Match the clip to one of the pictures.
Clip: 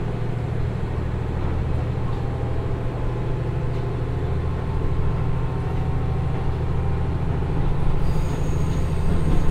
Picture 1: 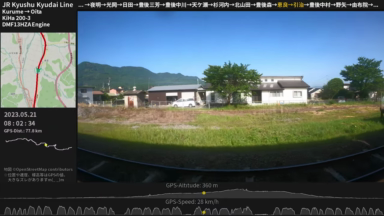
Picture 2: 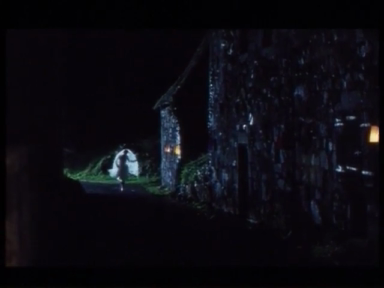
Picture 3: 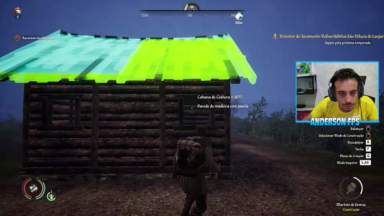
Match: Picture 1